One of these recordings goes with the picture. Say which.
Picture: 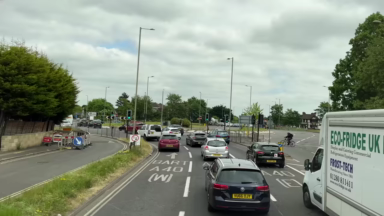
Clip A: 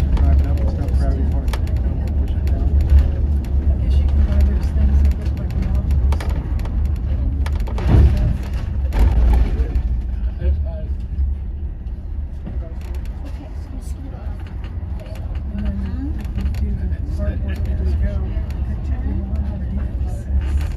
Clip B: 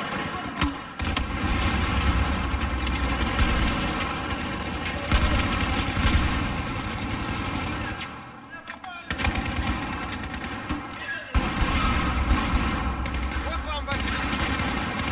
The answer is A